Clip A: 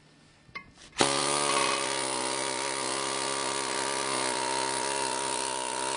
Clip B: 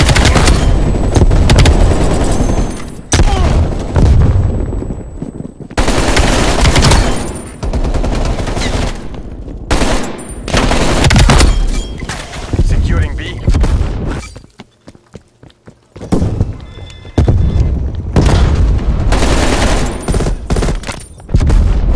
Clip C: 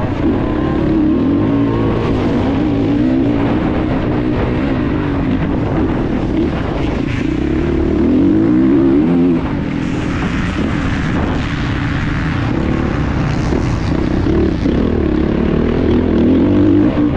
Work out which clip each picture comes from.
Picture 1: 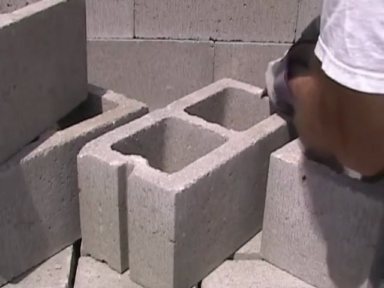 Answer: A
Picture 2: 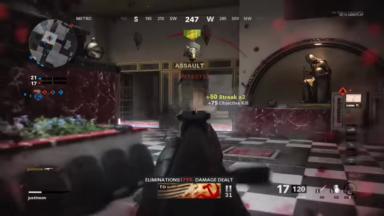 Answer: B